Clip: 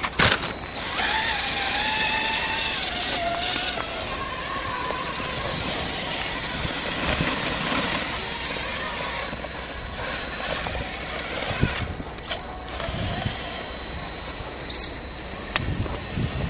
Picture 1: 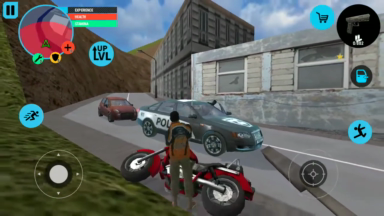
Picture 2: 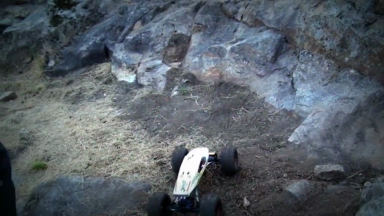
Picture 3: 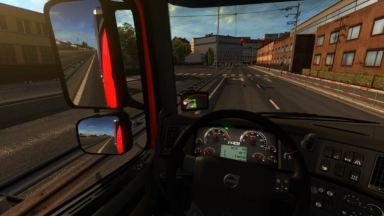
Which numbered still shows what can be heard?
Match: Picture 2